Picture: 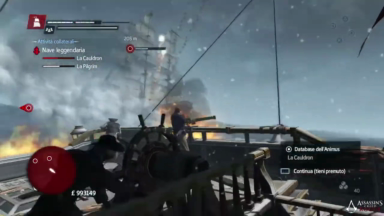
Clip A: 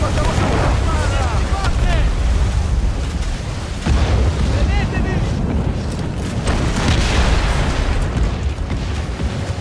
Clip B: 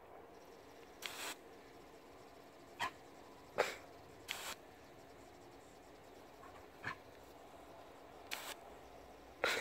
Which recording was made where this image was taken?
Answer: A